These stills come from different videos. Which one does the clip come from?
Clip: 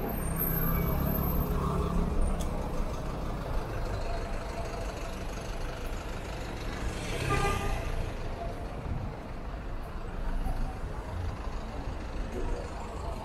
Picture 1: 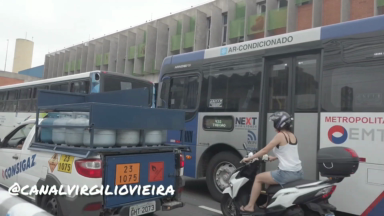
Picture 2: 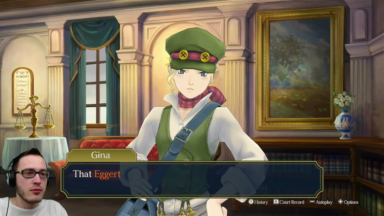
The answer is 1